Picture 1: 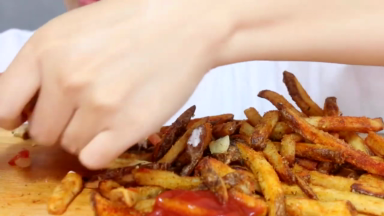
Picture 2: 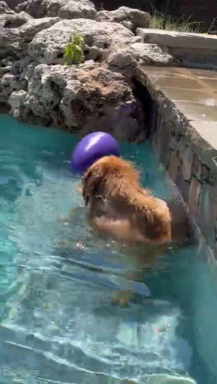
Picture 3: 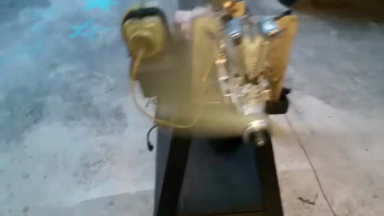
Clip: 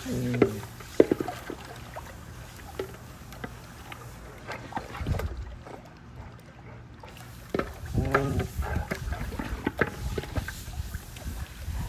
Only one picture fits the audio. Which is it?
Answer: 2